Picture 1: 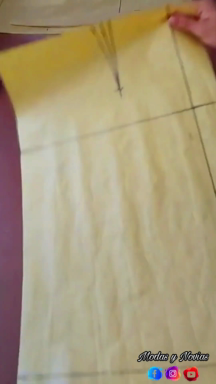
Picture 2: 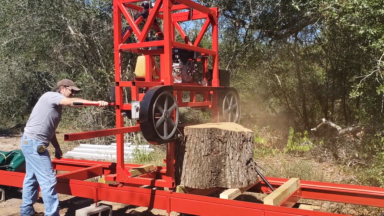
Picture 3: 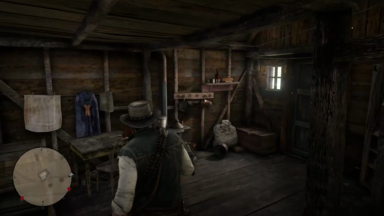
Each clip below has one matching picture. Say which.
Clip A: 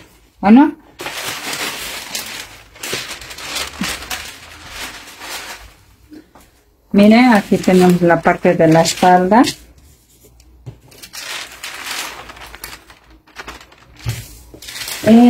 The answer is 1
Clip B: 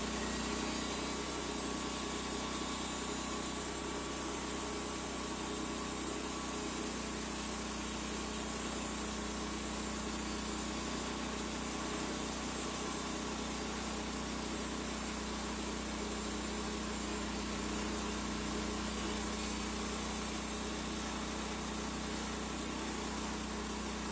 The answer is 2